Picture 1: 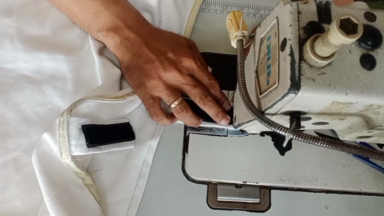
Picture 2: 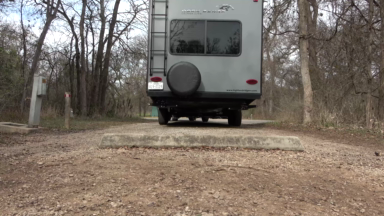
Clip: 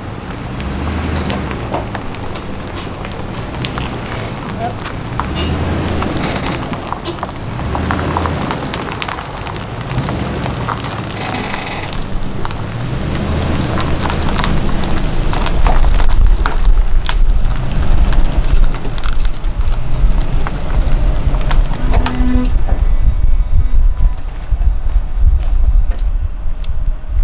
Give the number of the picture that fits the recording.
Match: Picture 2